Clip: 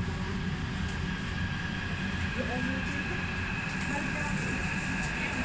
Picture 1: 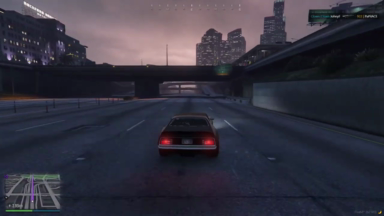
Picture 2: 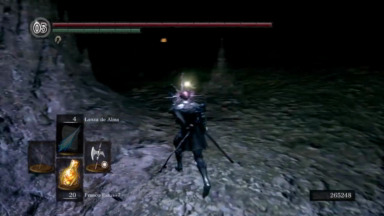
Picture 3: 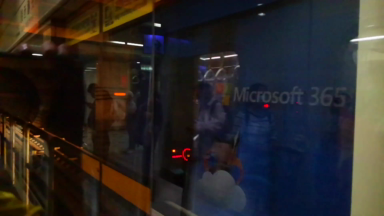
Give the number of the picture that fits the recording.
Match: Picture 3